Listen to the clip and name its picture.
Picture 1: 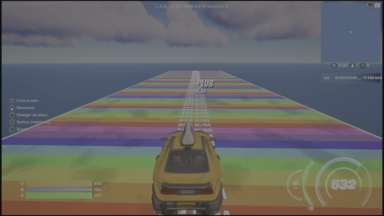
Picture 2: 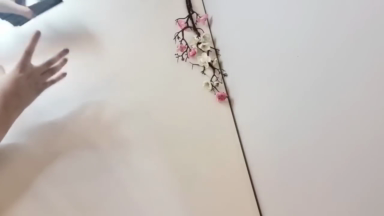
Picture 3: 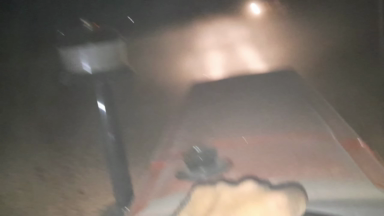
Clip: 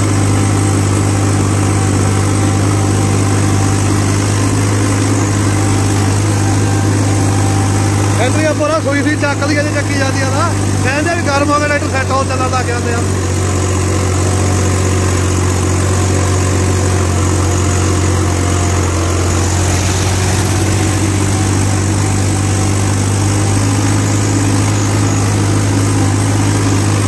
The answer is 3